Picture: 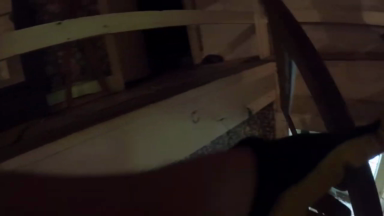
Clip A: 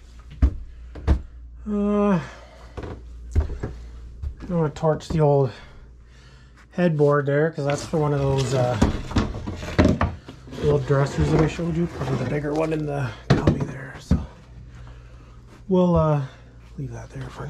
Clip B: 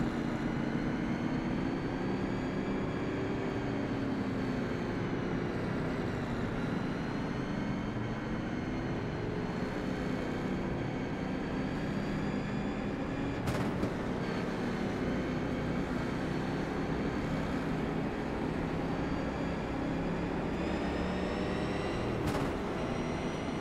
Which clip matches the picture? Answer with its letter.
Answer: A